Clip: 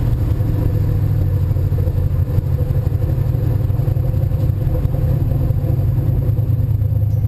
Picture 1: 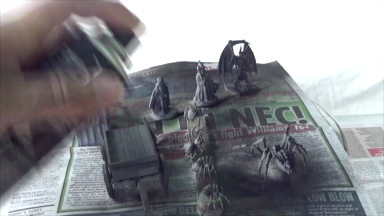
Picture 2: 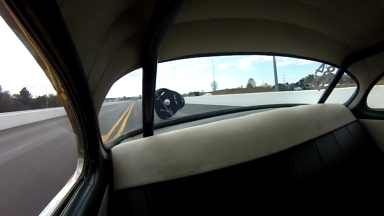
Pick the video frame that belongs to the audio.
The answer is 2